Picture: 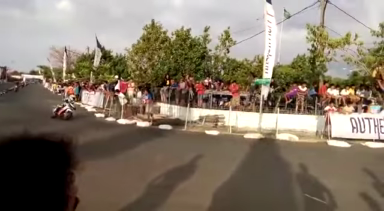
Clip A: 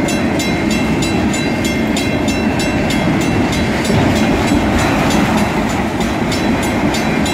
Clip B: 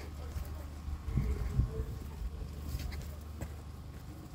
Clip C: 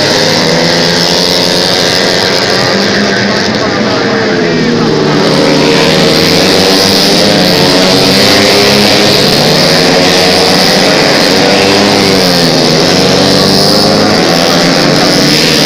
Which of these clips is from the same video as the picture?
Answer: C